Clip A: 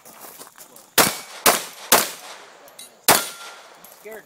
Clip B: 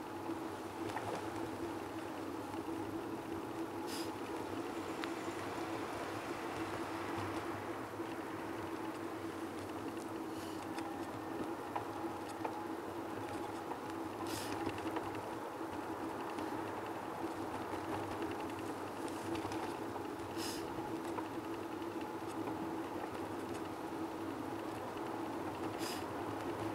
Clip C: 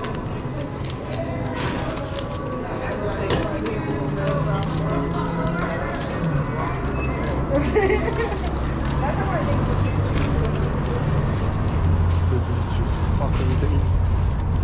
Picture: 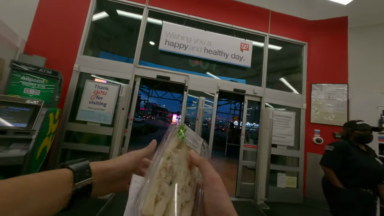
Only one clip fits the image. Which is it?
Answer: C